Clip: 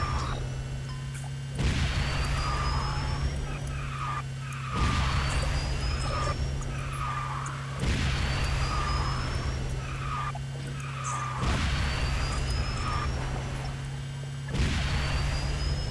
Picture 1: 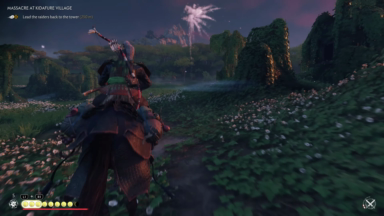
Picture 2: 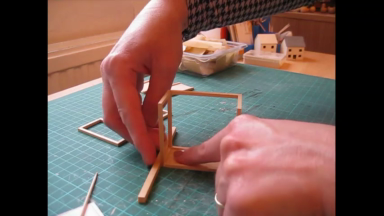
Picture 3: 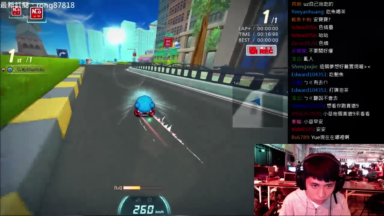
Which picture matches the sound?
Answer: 3